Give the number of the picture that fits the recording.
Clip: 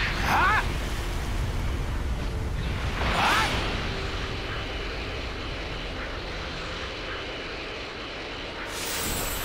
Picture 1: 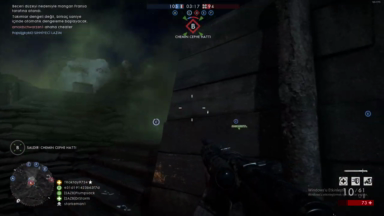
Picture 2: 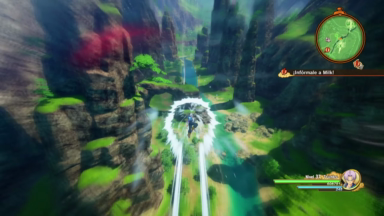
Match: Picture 2